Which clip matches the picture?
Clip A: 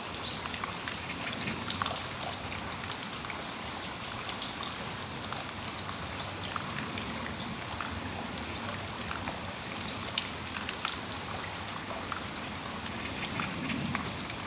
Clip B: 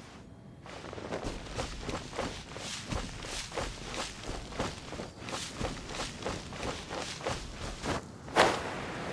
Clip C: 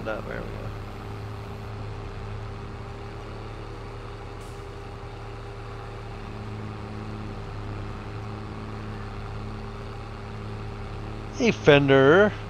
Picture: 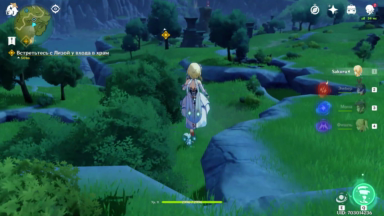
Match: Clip B